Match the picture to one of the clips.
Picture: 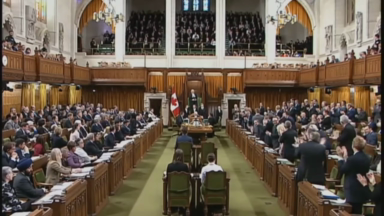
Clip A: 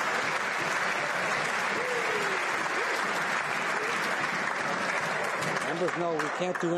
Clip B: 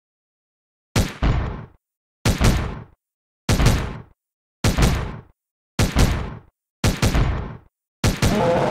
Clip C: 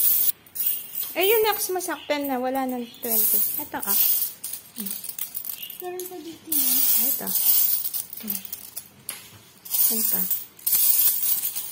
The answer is A